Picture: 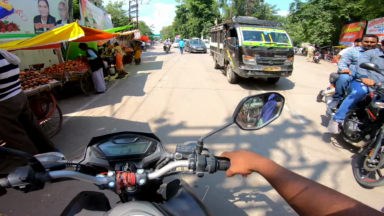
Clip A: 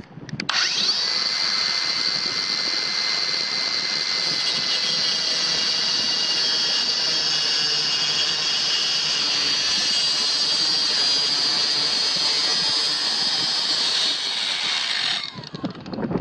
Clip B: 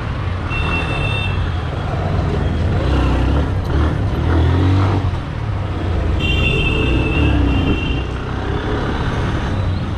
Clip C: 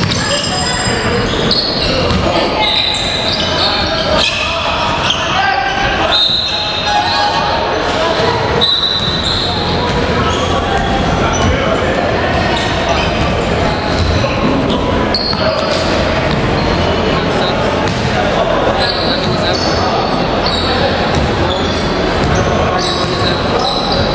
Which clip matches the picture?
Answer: B